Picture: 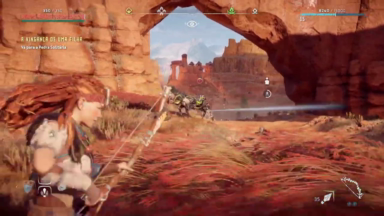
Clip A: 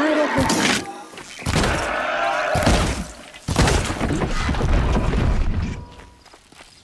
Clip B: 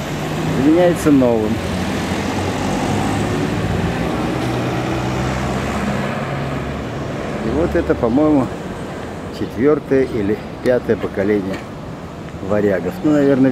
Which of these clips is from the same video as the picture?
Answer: A